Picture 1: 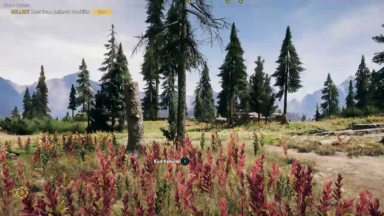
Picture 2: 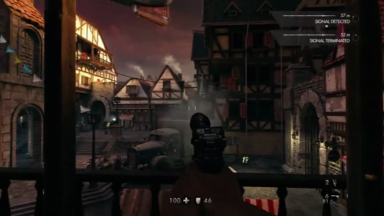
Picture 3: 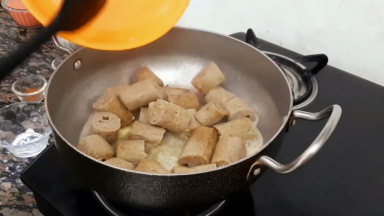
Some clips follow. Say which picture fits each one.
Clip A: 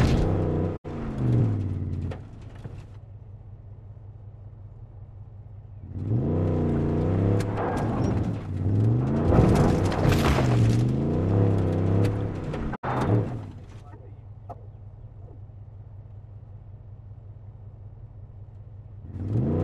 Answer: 1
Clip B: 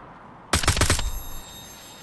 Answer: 2